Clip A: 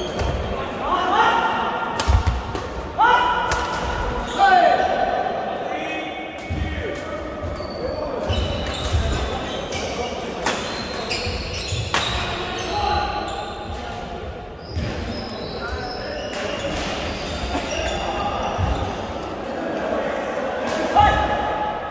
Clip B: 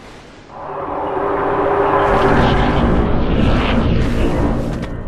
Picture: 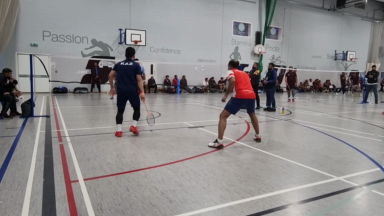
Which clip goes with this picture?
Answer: A